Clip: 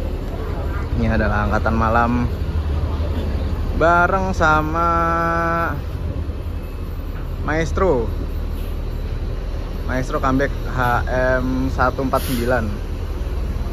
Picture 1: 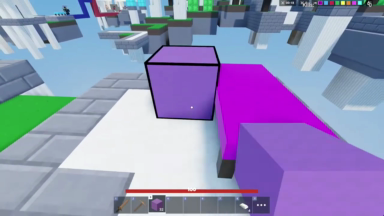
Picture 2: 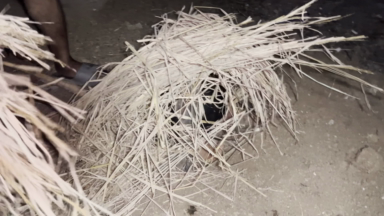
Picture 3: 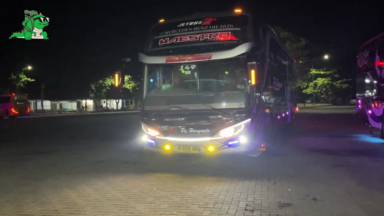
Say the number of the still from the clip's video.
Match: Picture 3